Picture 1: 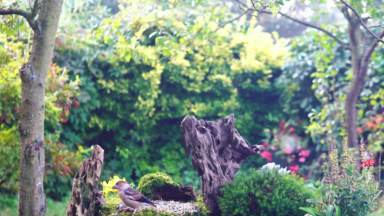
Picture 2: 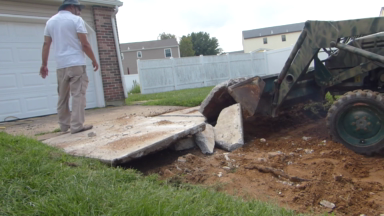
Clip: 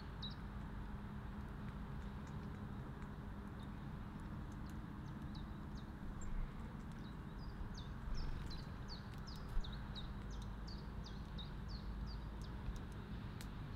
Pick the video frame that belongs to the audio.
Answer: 1